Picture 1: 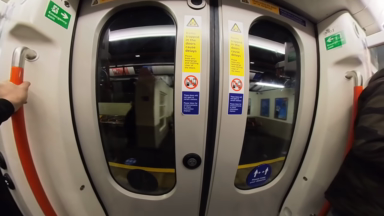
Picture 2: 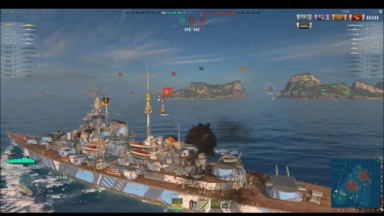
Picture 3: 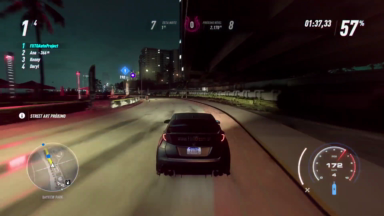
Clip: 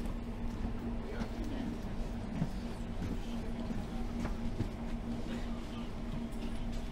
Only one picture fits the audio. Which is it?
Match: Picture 1